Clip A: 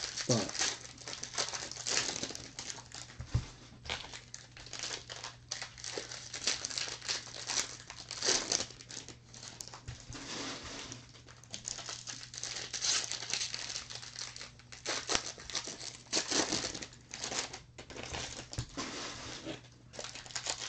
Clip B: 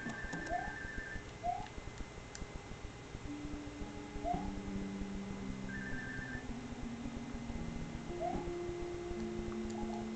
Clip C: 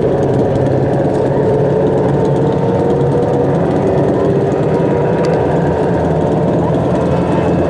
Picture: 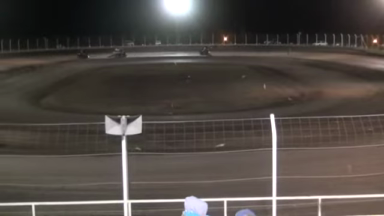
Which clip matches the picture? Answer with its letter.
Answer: C